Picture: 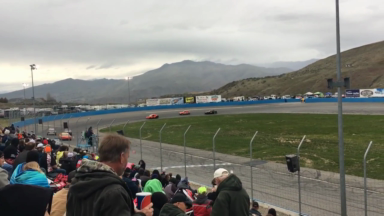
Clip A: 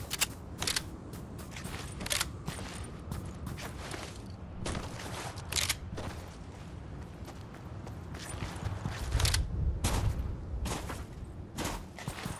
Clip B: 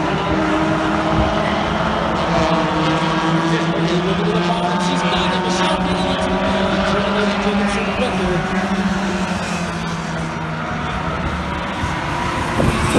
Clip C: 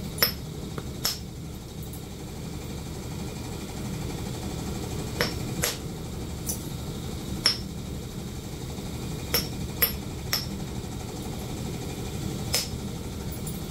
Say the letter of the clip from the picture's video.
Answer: B